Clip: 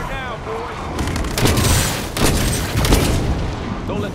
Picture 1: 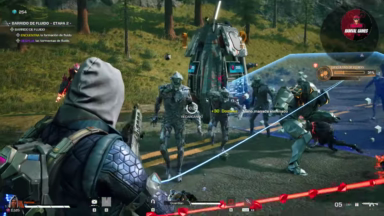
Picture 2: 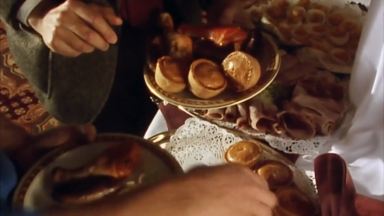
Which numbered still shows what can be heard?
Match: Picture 1